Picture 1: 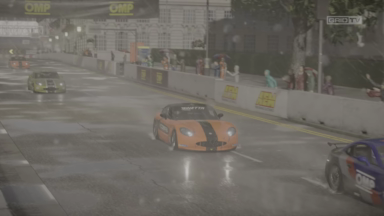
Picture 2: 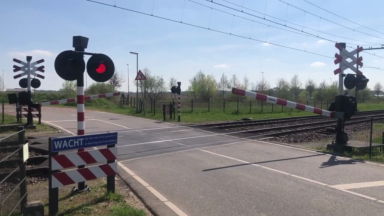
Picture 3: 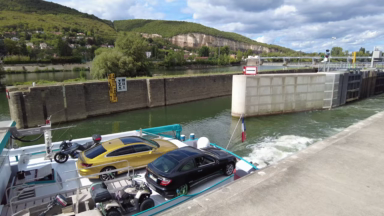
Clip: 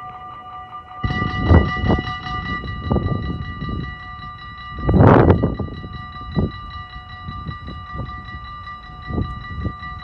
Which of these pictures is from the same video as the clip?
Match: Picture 2